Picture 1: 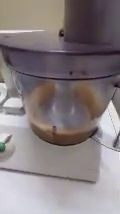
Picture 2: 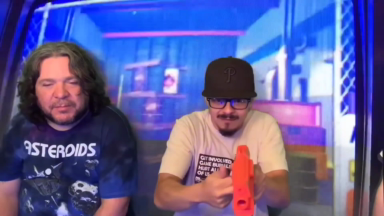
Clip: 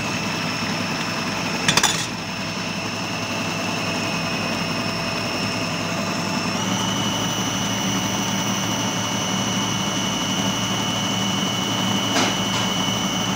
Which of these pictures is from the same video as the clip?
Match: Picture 1